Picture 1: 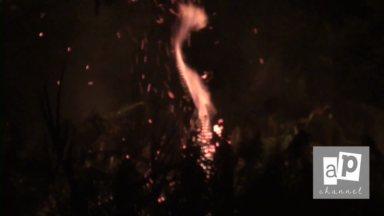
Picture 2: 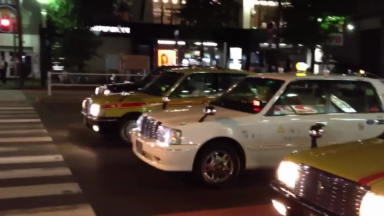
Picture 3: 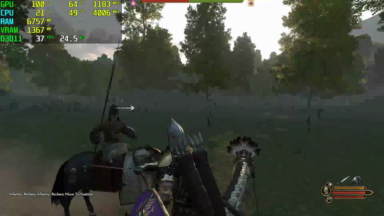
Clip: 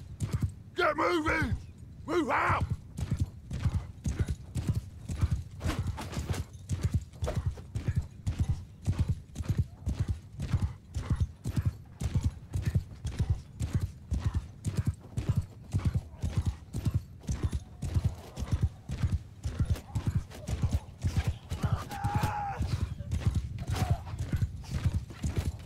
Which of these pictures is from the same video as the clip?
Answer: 3